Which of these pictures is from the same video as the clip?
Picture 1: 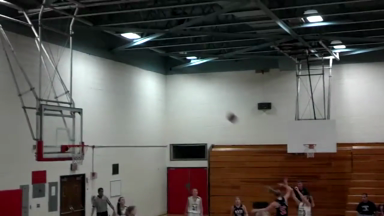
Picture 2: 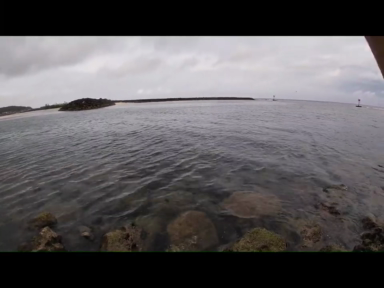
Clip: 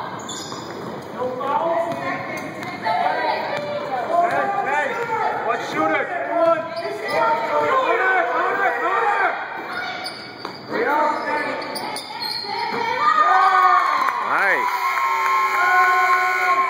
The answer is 1